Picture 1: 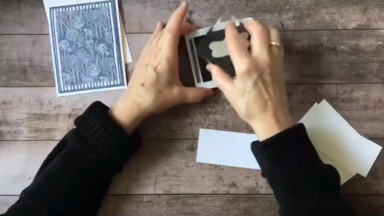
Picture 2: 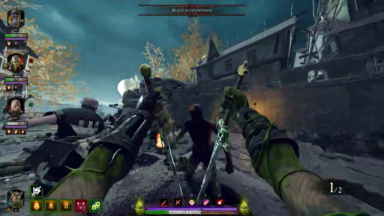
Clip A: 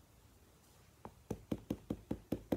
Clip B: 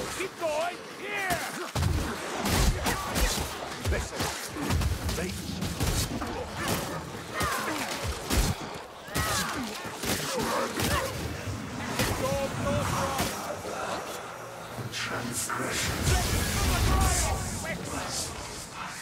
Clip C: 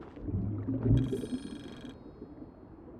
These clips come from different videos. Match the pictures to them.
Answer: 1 A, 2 B